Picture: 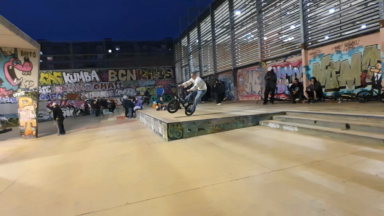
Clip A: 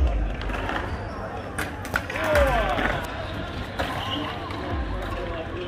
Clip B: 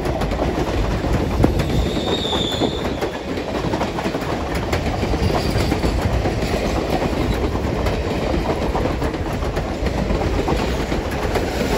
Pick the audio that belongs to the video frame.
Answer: A